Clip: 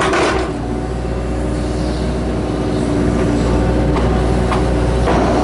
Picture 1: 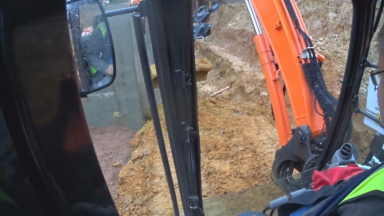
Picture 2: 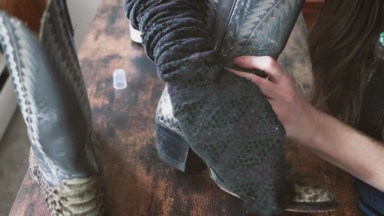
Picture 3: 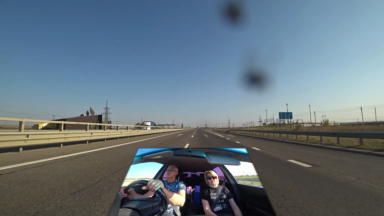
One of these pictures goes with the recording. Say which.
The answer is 1